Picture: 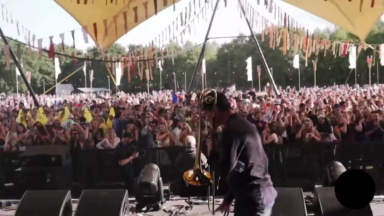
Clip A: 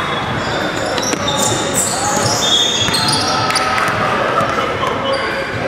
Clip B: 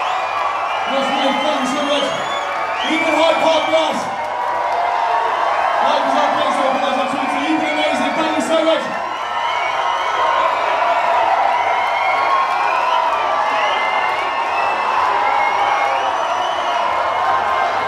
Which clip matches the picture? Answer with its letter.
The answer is B